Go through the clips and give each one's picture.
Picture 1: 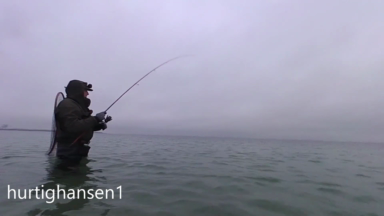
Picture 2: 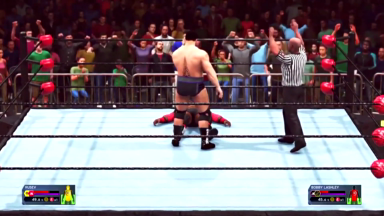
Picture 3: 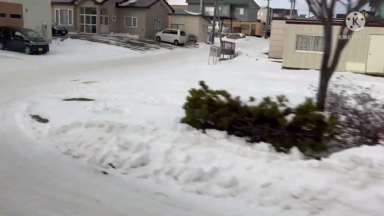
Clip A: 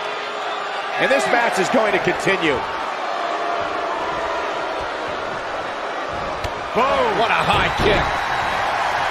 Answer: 2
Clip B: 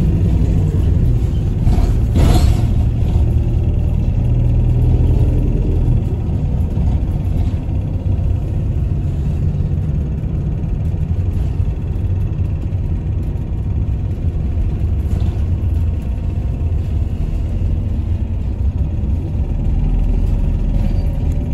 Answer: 3